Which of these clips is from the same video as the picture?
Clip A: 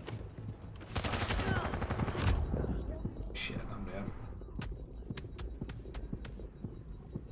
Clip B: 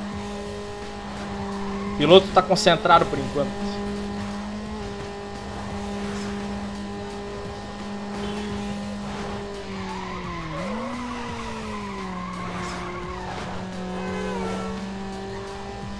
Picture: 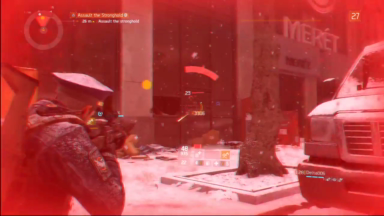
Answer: A